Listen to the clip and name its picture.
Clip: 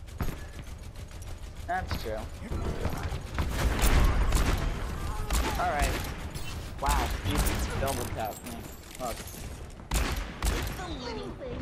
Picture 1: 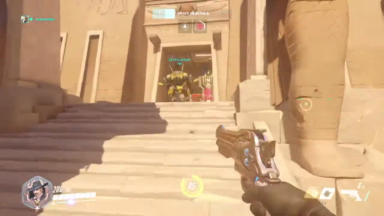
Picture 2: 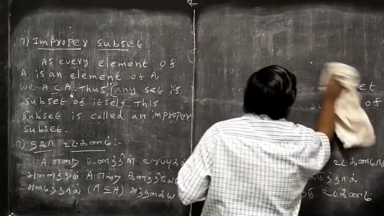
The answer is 1